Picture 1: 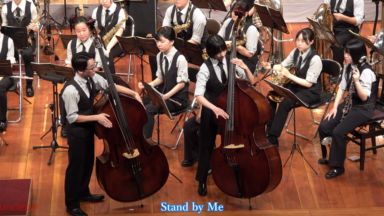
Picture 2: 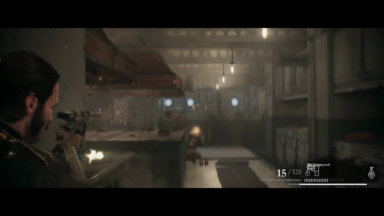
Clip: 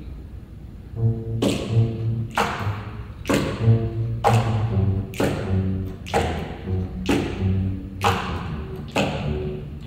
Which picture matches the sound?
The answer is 1